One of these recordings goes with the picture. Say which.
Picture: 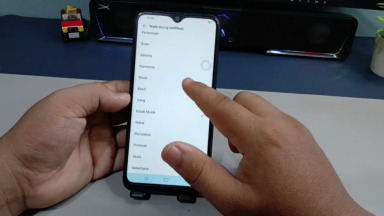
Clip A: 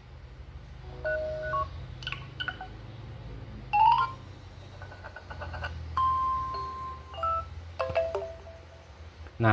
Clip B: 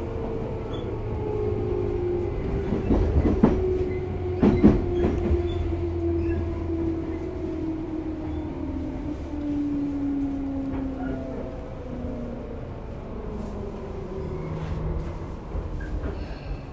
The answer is A